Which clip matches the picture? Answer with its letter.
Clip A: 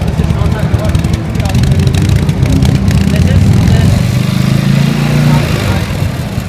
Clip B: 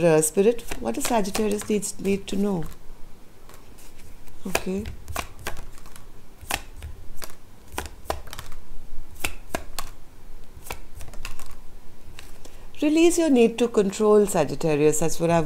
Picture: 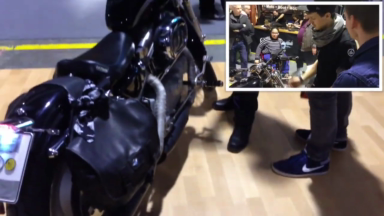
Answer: A